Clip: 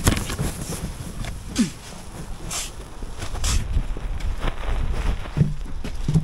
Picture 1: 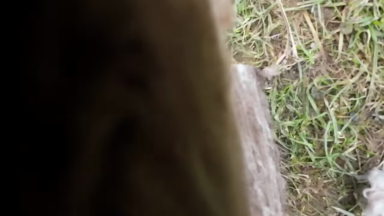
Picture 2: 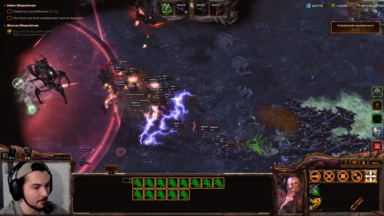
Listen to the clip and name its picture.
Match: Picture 1